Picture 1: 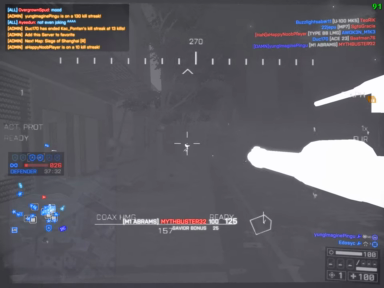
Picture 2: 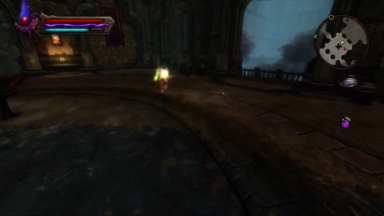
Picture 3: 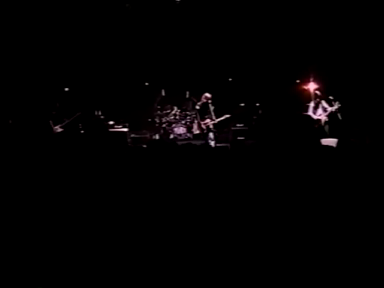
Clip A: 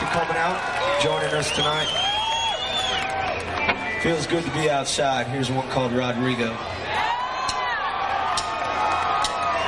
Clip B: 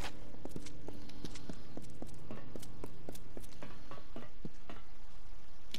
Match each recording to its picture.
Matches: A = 3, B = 2